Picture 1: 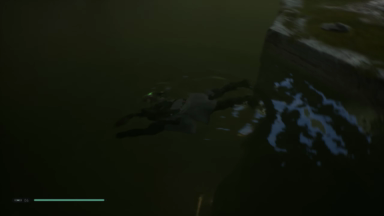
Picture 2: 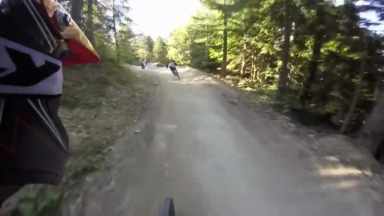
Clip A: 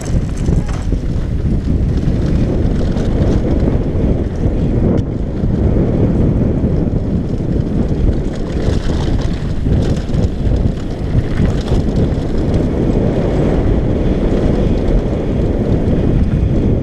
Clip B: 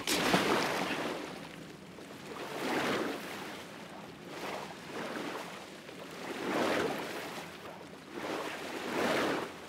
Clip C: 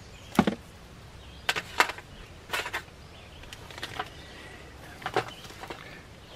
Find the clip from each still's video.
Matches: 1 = B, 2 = A